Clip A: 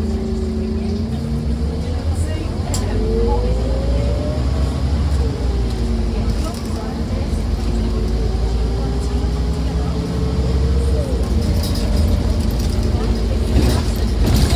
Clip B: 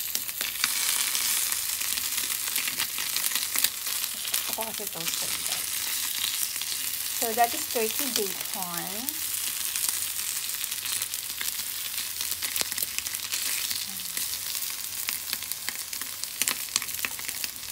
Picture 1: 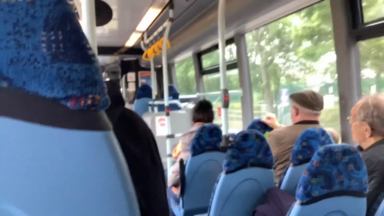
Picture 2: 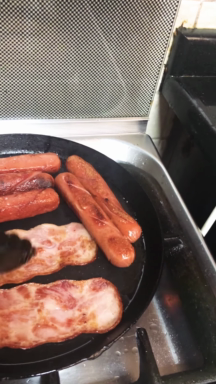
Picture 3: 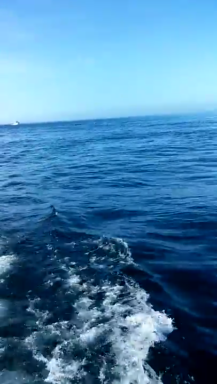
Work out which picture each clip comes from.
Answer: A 1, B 2